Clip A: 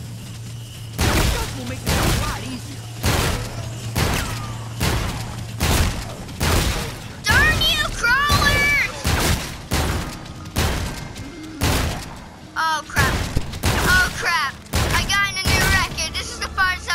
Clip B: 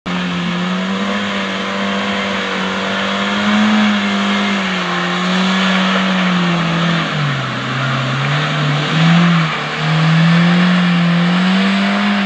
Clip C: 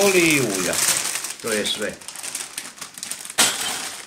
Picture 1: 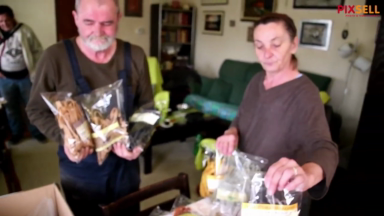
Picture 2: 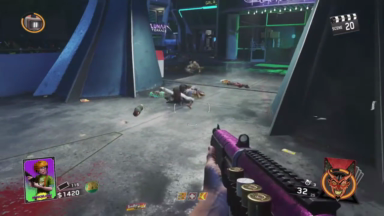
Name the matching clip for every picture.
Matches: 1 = C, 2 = A